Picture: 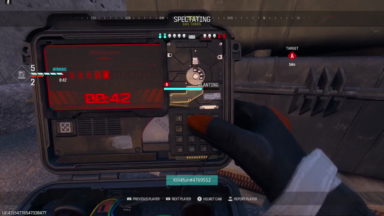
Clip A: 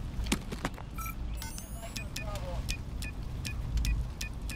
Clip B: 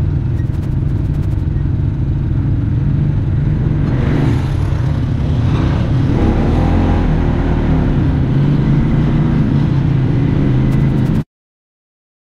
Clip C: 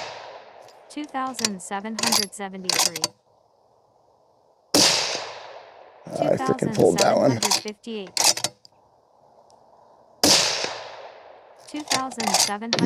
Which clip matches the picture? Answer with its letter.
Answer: A